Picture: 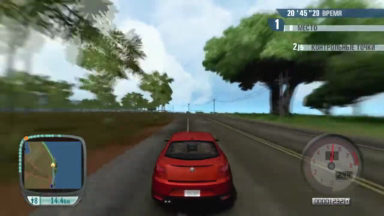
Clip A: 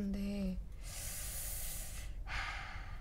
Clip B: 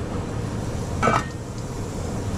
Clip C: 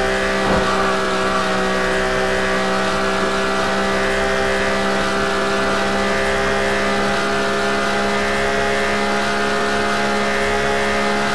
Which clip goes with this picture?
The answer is C